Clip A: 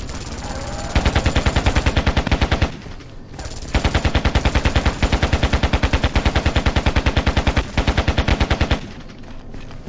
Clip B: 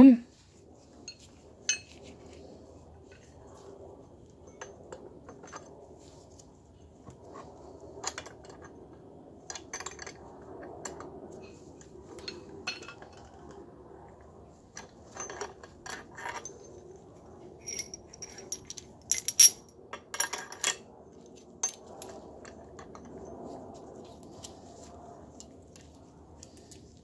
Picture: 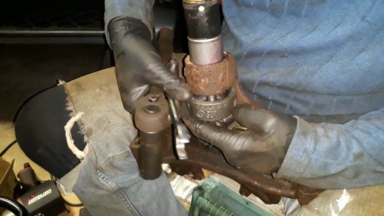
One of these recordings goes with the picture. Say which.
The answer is B